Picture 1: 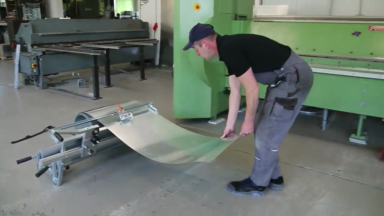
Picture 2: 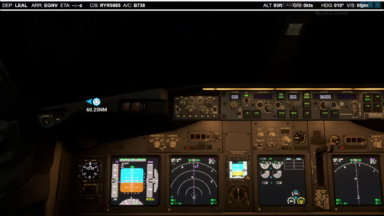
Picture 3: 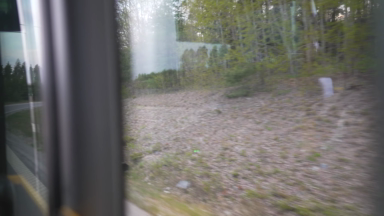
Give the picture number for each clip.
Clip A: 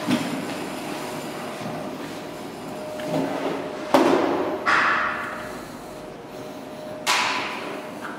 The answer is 1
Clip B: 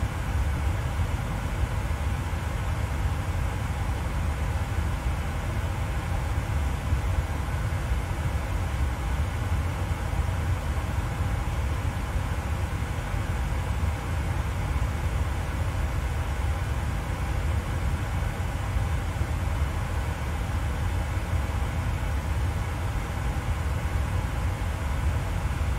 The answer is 2